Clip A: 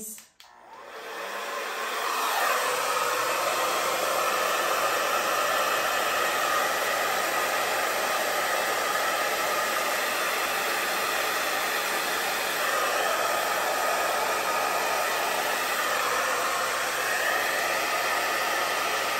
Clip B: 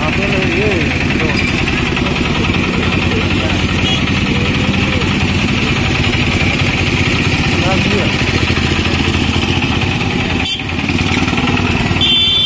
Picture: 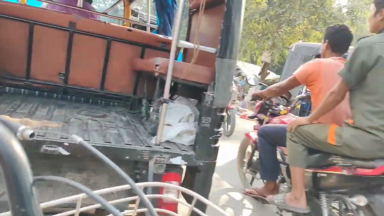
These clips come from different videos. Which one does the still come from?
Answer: B